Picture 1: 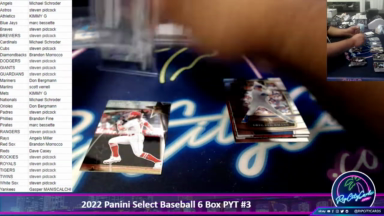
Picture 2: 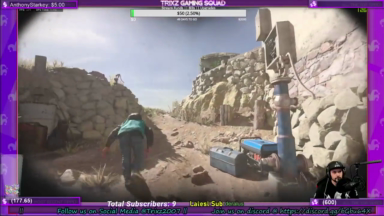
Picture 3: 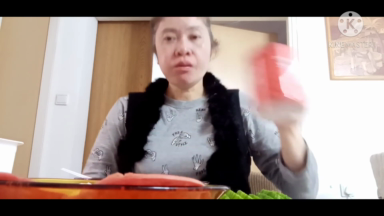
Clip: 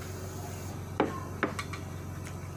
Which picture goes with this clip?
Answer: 3